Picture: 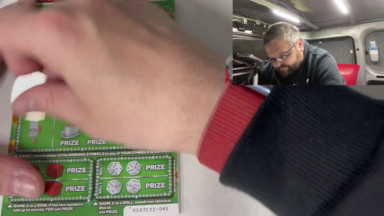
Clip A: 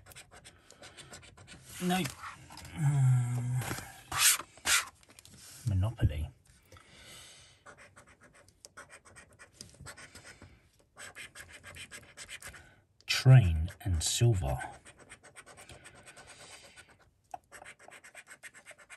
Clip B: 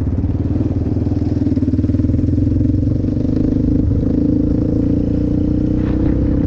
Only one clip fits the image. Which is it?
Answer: A